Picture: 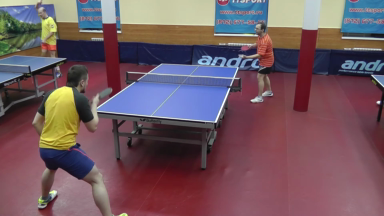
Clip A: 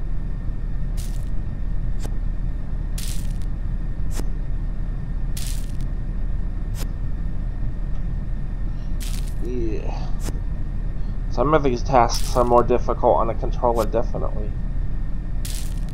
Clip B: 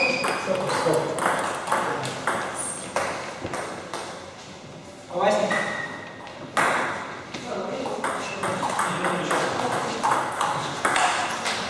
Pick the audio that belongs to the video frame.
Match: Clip B